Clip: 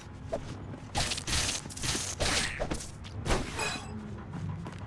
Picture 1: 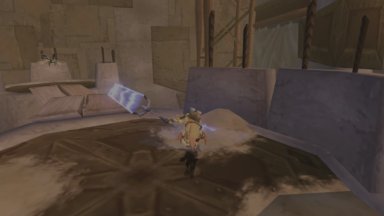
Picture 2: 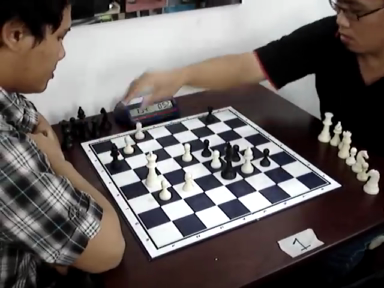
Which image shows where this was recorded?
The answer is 1